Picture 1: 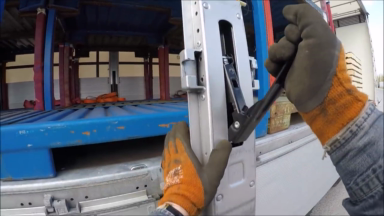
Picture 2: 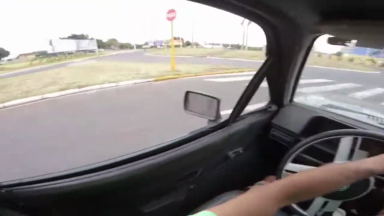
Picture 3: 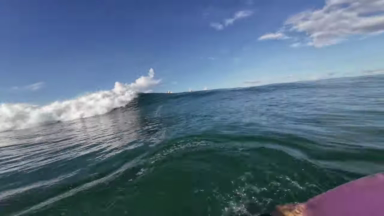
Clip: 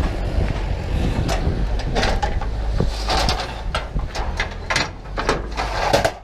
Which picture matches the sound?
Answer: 1